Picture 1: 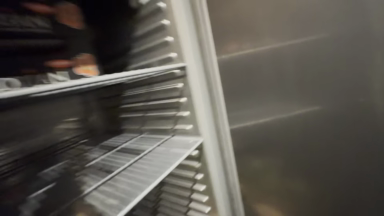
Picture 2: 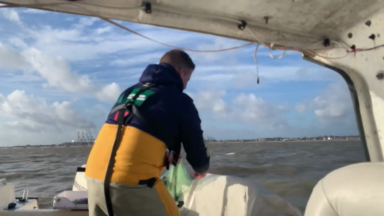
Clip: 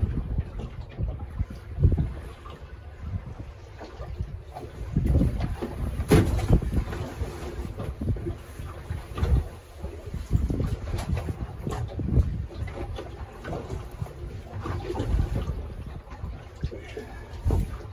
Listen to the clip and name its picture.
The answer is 2